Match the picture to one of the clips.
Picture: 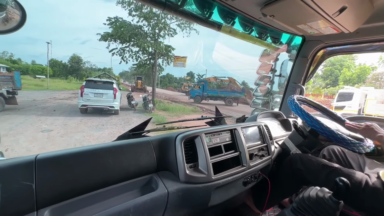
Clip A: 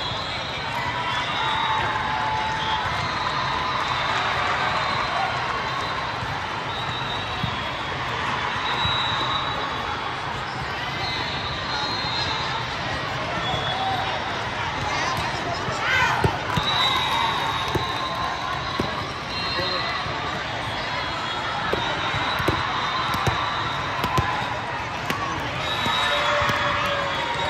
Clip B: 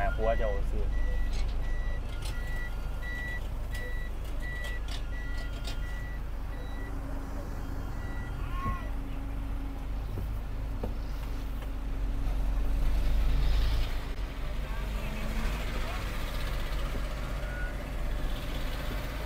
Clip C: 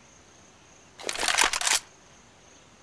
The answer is B